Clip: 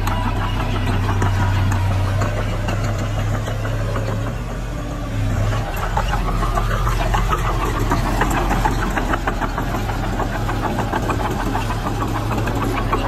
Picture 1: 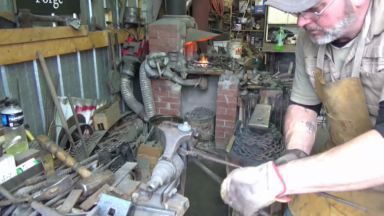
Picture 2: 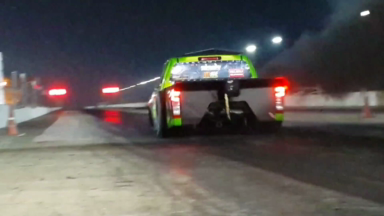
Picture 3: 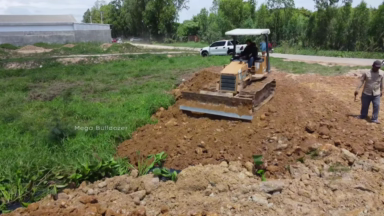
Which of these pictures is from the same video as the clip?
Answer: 3